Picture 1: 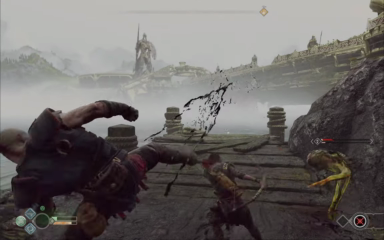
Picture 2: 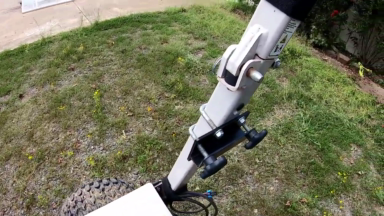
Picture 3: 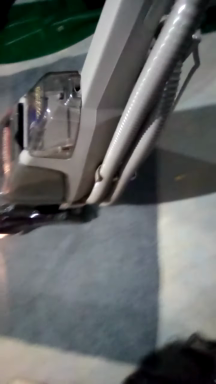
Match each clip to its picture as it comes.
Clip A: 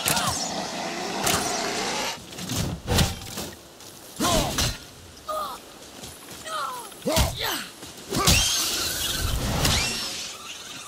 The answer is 1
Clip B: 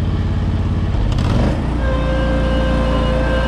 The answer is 2